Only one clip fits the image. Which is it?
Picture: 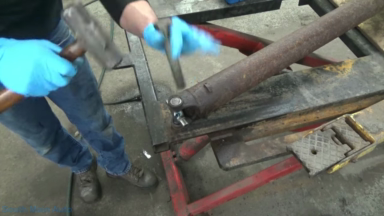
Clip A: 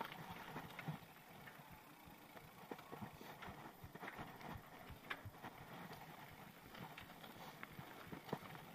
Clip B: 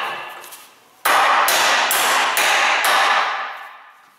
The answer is B